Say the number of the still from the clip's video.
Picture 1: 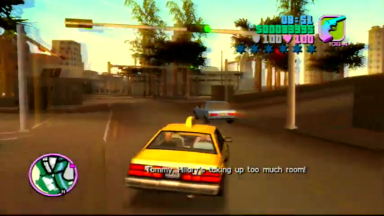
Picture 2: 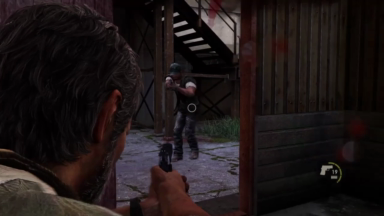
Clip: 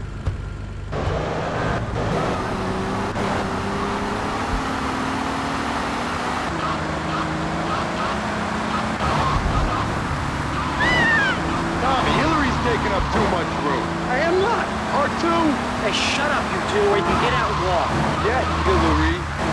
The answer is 1